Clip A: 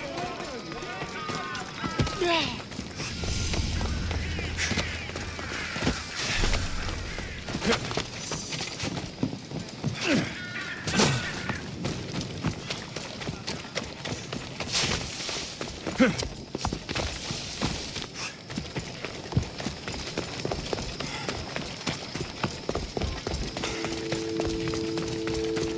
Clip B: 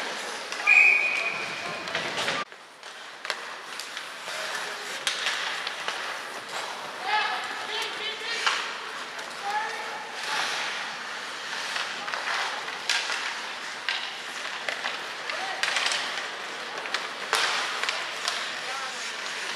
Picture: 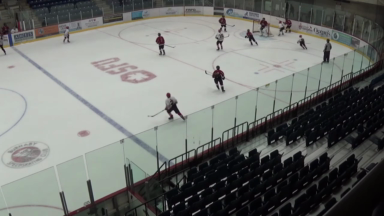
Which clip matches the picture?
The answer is B